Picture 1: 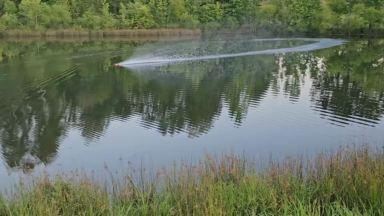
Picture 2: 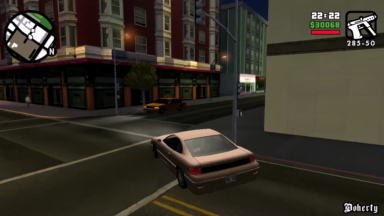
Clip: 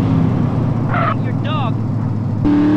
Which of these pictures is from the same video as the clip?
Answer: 2